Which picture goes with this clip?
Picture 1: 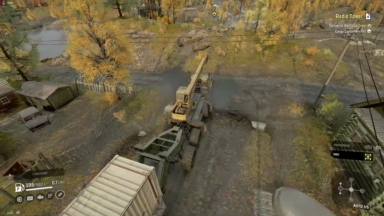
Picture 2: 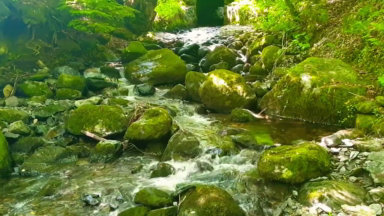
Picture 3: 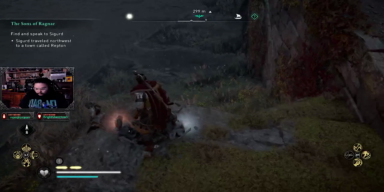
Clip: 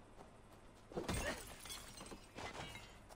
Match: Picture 3